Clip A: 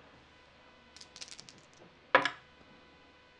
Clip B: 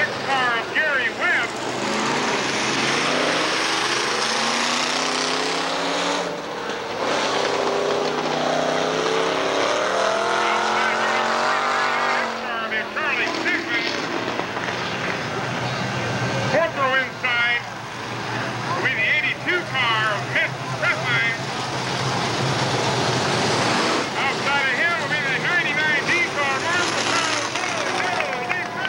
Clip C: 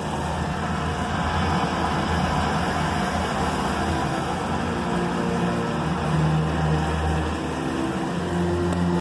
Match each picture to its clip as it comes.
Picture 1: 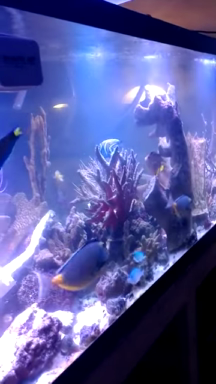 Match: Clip C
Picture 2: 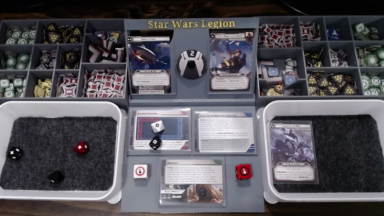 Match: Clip A